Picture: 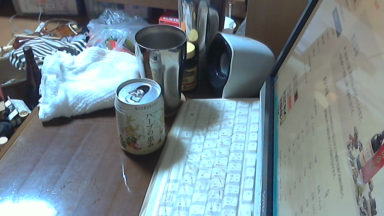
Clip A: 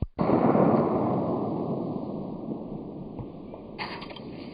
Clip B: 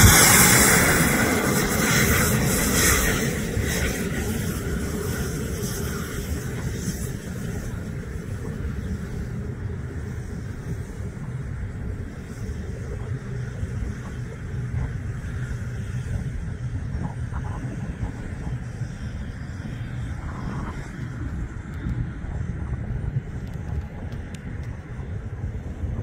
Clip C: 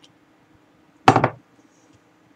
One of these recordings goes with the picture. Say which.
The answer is C